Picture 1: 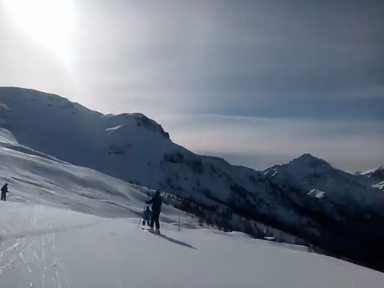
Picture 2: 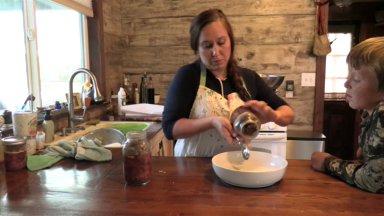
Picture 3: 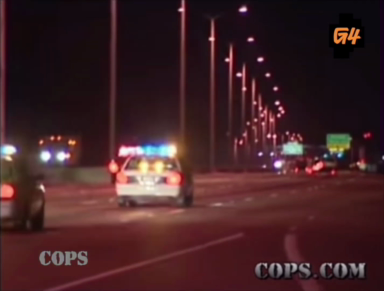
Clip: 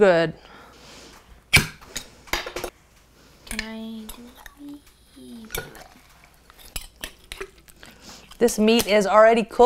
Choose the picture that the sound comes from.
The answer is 2